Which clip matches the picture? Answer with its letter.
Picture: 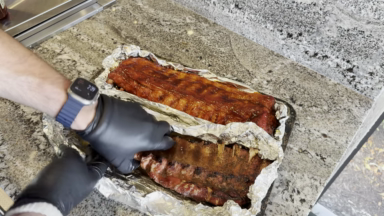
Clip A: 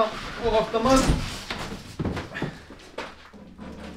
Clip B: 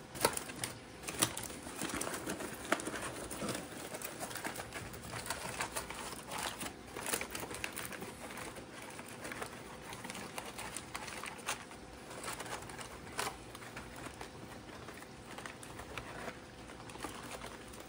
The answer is B